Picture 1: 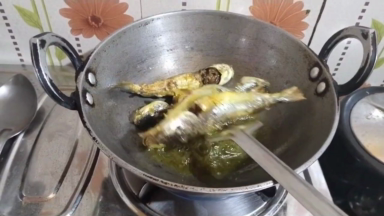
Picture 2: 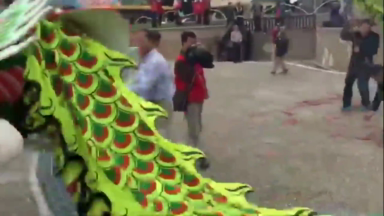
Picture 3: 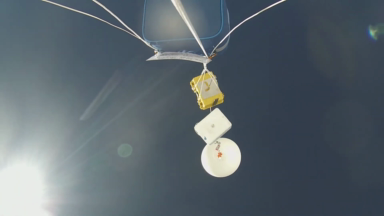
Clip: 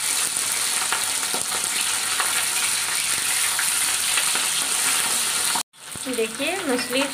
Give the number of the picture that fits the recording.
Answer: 1